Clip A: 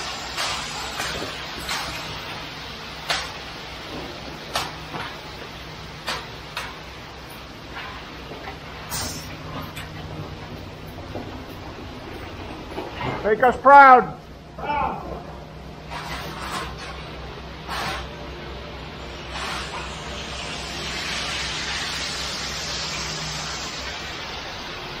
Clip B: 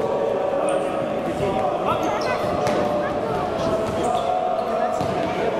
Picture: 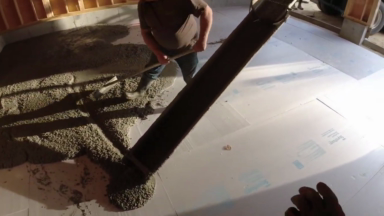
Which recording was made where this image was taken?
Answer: A